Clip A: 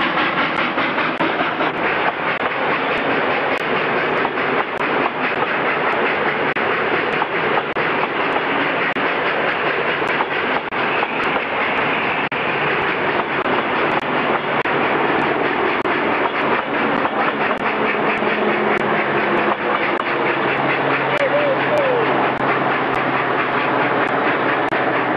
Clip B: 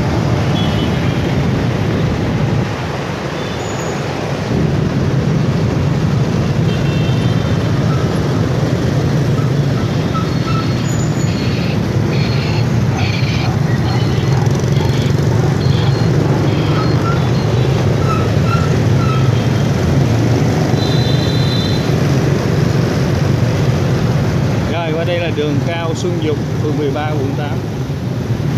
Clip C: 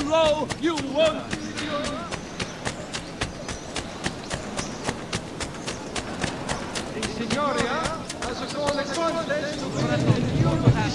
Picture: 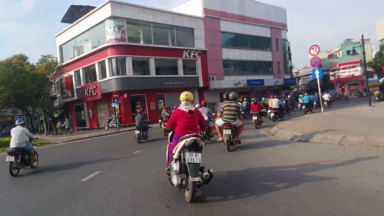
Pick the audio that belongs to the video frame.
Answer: B